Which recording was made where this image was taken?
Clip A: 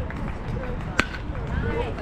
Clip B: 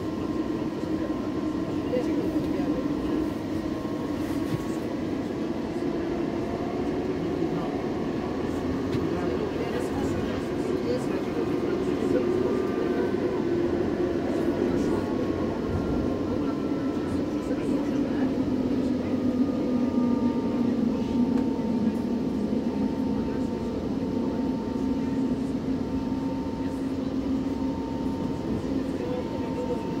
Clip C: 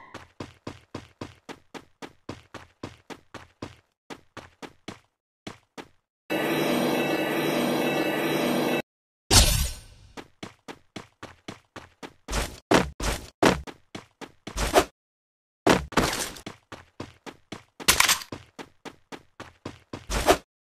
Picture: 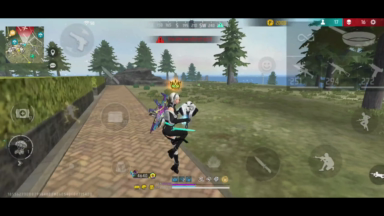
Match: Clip C